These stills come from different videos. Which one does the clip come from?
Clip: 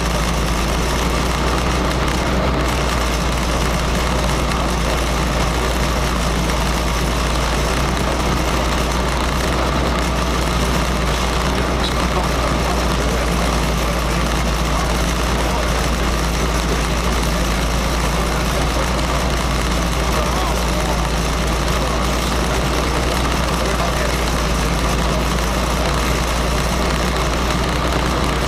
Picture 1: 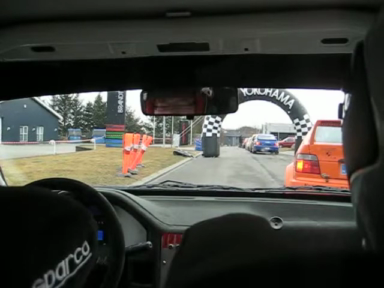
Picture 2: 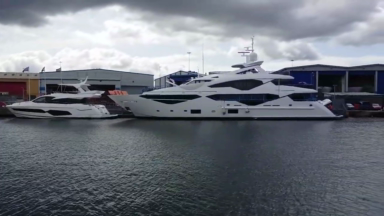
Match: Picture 1